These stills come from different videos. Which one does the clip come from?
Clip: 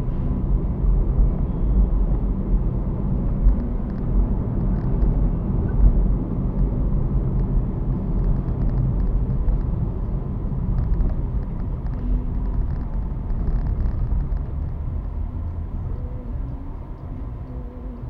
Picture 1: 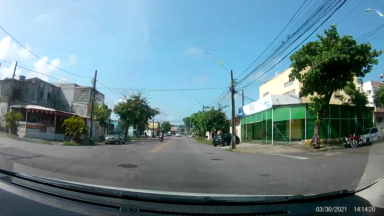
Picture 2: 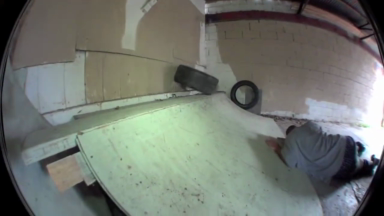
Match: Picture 1